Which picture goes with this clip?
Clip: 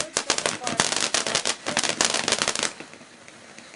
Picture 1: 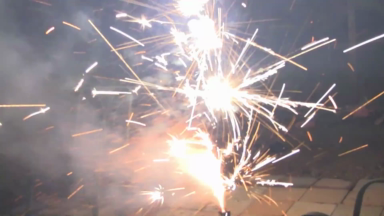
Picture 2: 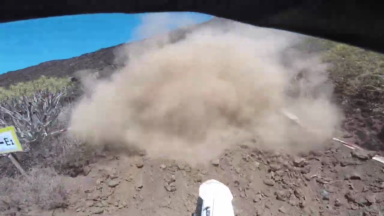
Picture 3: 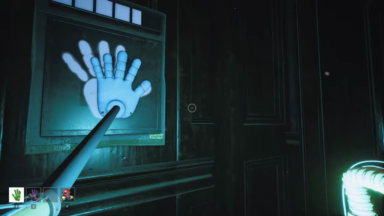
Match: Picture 1